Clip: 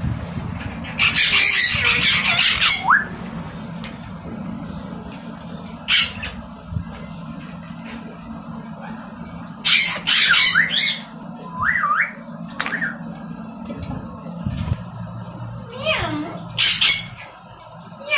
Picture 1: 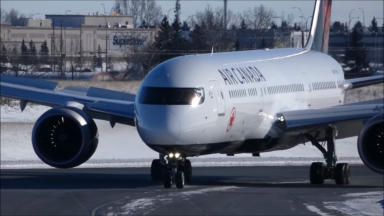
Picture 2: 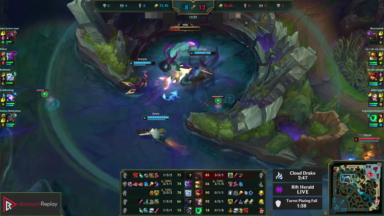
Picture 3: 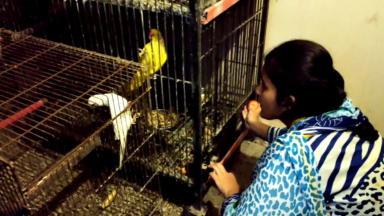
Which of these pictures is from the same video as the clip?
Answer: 3